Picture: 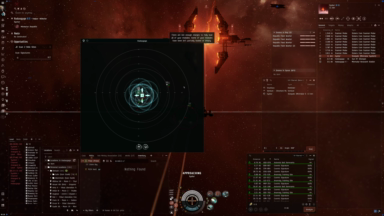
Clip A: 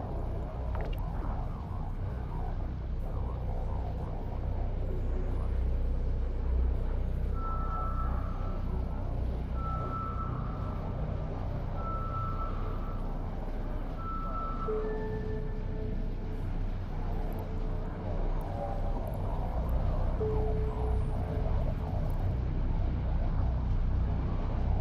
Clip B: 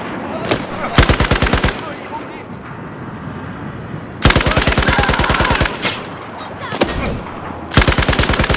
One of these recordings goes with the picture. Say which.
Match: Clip A